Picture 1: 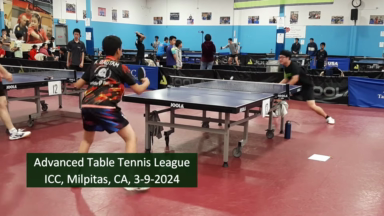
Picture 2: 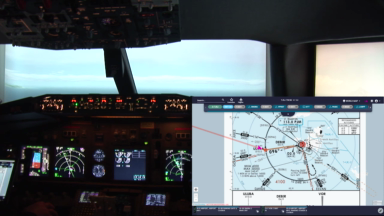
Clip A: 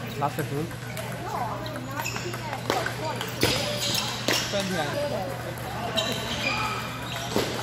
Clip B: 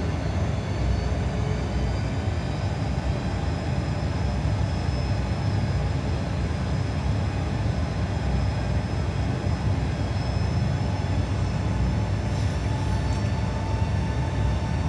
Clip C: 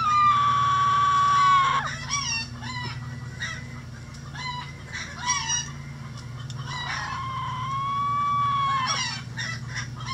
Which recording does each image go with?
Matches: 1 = A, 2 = B